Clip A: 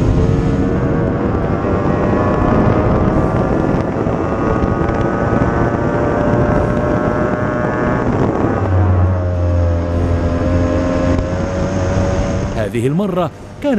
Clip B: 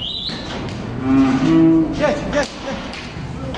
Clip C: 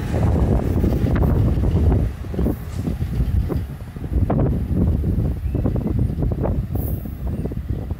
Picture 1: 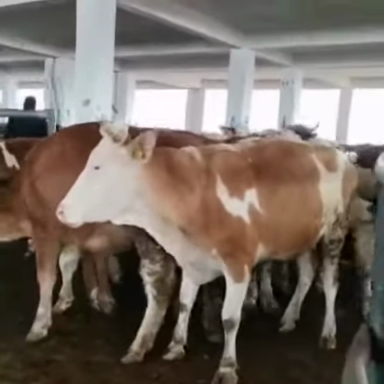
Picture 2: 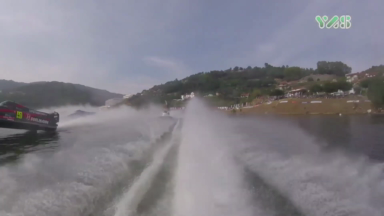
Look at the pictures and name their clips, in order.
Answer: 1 B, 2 A